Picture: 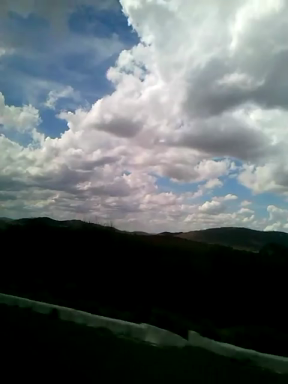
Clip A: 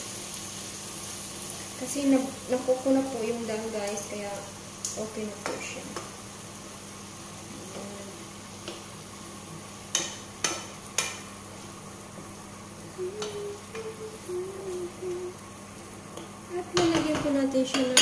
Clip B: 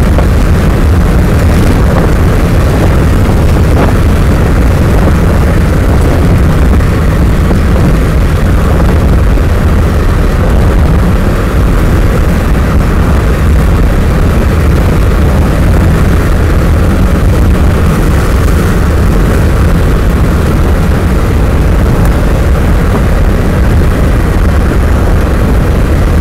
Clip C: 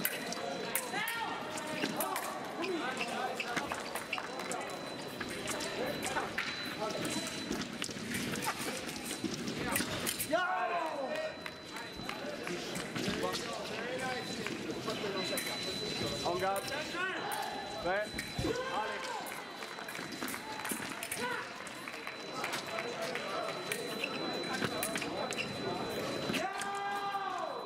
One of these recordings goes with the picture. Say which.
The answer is B